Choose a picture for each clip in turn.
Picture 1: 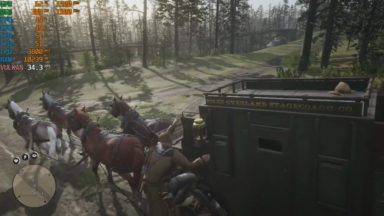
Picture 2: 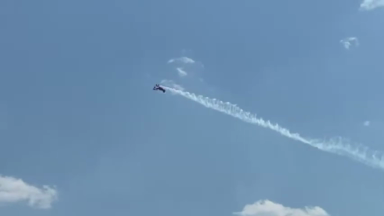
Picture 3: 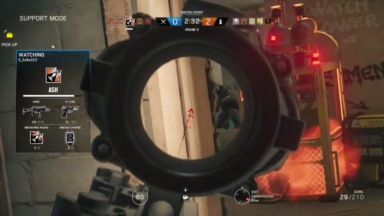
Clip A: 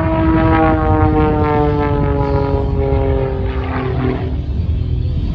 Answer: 2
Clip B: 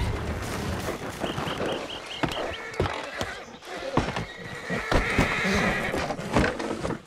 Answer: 1